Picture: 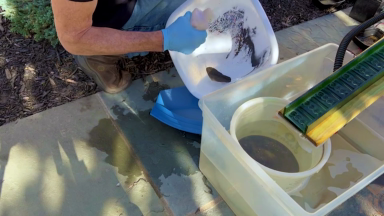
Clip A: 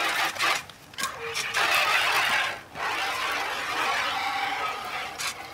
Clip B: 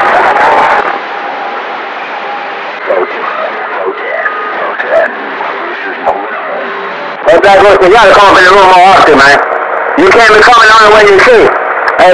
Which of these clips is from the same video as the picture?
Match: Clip A